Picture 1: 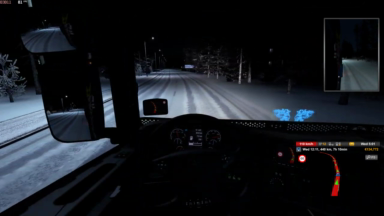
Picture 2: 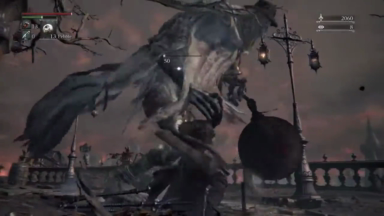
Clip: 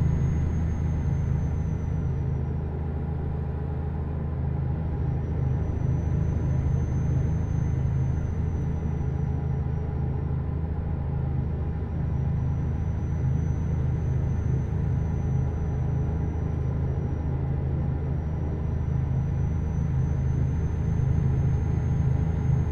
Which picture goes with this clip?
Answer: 1